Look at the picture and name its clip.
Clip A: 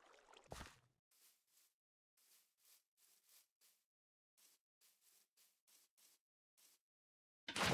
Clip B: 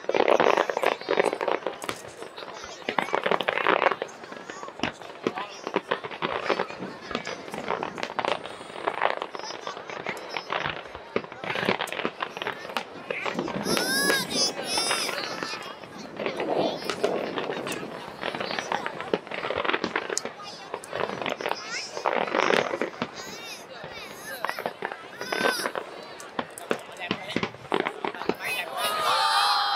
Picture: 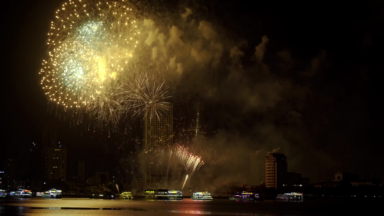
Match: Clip B